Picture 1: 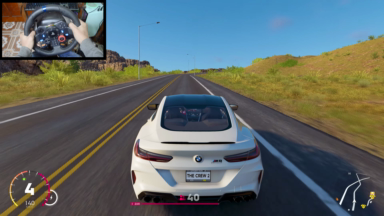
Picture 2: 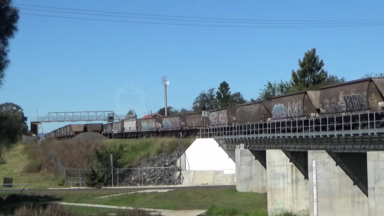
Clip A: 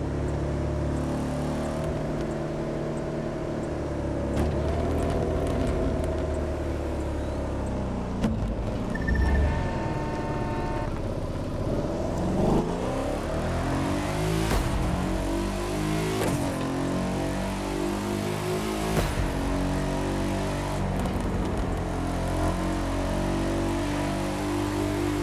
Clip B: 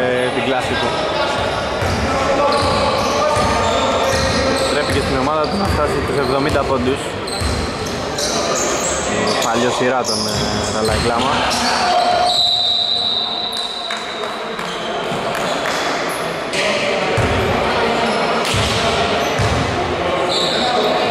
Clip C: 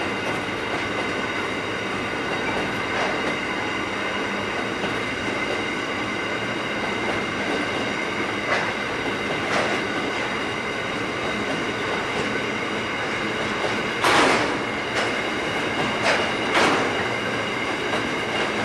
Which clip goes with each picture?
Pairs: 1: A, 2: C